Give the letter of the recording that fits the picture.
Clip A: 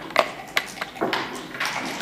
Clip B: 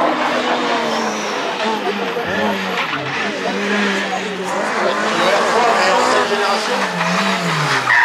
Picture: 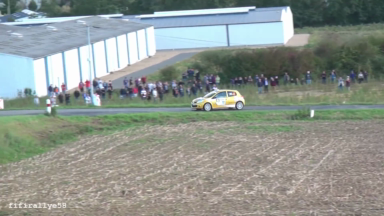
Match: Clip B